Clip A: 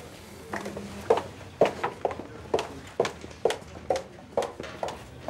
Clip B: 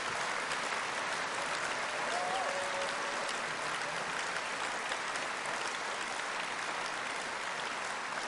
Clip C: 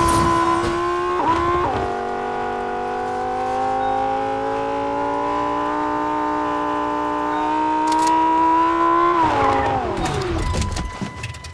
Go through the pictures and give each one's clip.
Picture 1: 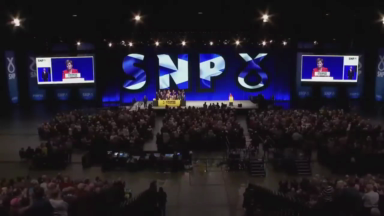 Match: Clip B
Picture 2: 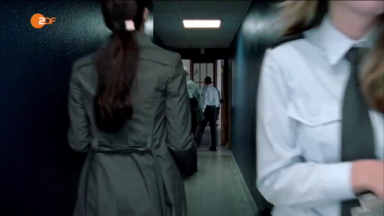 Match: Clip A